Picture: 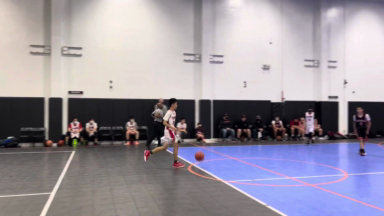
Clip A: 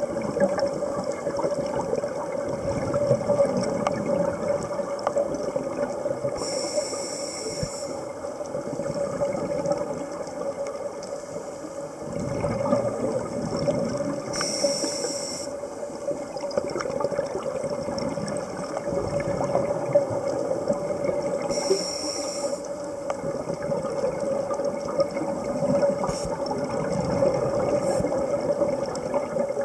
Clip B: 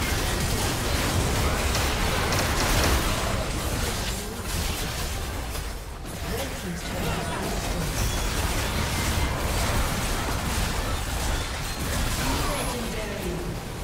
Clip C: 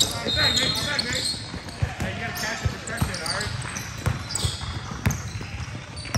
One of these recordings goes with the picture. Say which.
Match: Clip C